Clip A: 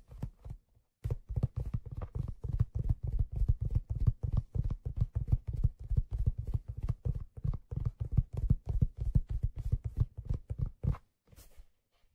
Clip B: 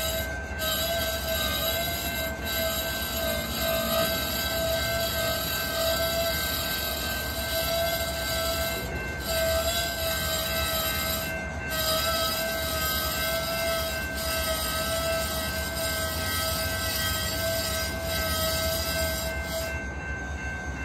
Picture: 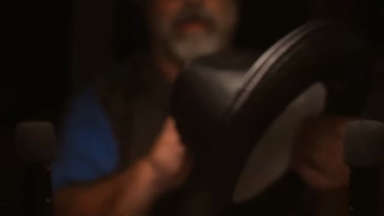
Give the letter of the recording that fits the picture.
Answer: A